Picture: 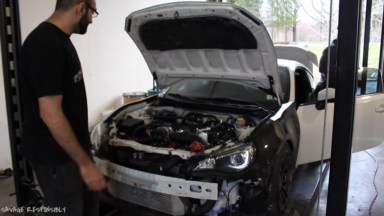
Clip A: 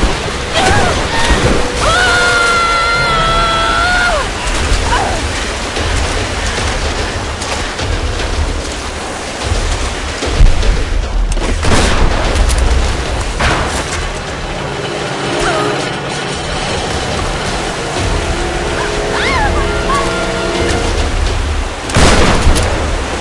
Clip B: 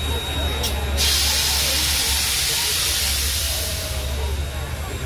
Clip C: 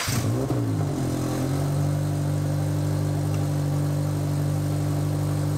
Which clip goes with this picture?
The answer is C